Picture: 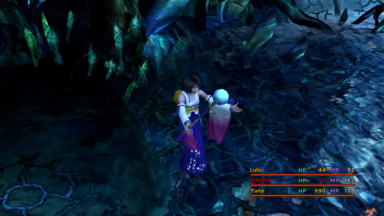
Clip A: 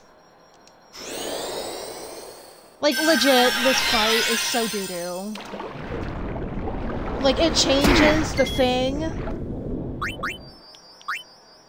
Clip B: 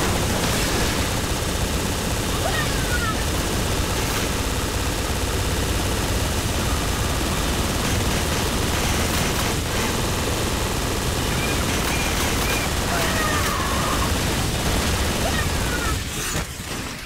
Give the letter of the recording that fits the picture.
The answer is A